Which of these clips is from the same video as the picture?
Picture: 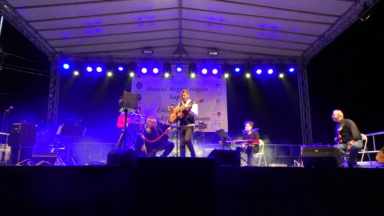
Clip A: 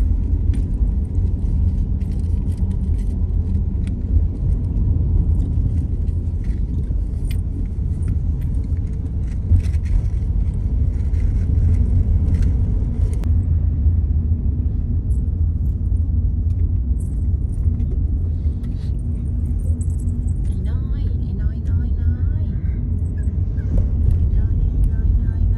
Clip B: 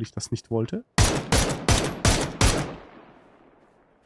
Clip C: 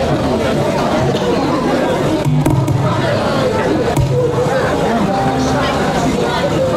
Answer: C